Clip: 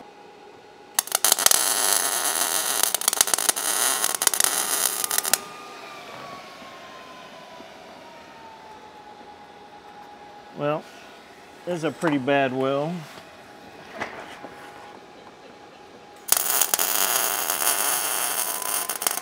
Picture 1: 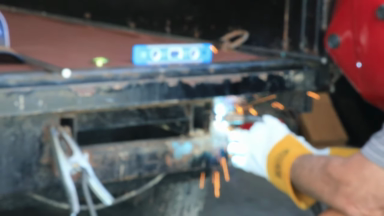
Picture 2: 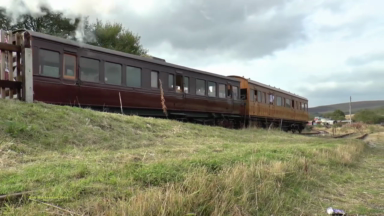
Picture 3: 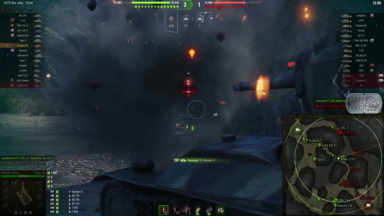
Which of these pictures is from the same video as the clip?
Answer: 1